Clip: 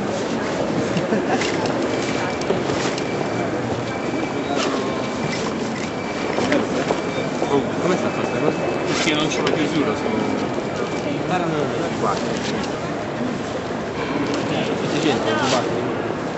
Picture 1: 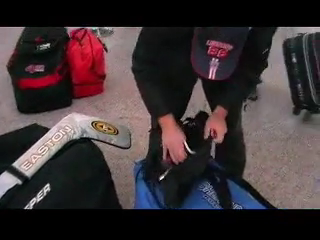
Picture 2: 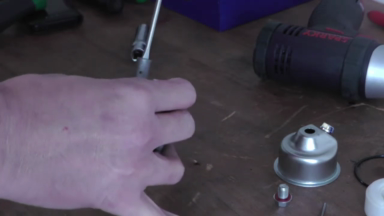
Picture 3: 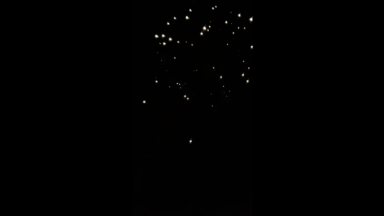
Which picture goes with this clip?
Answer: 1